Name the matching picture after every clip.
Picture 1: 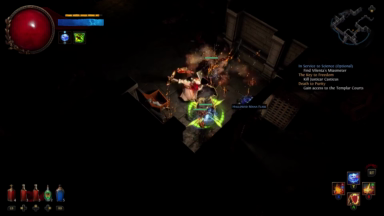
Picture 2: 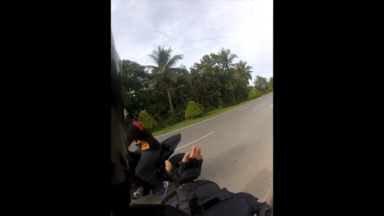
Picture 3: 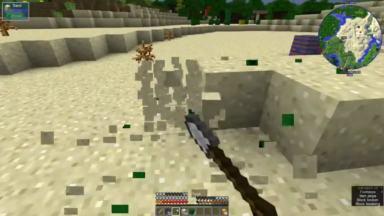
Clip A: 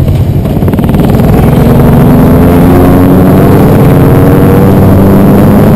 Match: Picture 2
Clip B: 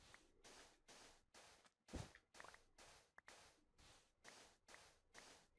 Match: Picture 3